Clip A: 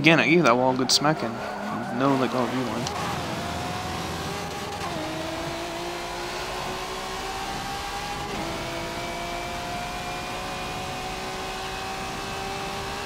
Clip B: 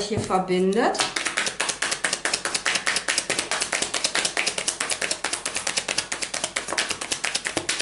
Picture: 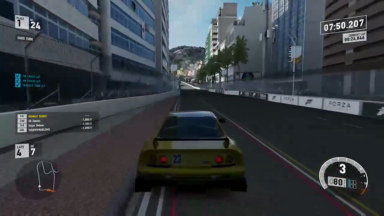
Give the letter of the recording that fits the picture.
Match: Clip A